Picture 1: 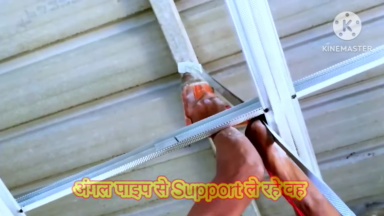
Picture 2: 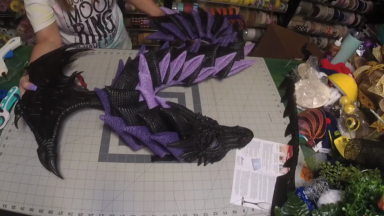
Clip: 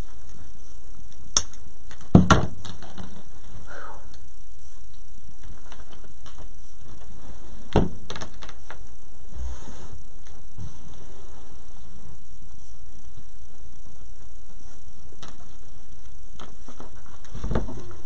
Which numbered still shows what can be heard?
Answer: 2